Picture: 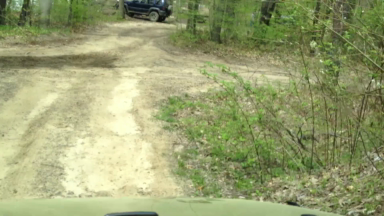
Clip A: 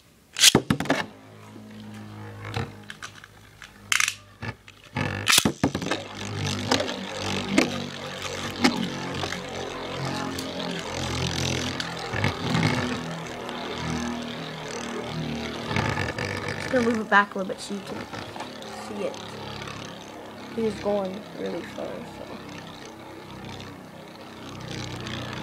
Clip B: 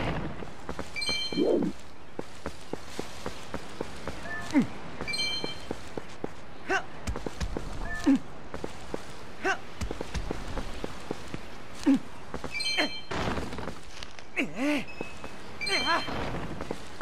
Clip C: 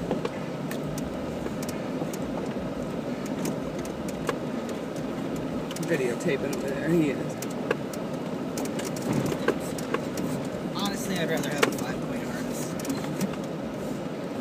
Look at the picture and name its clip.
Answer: C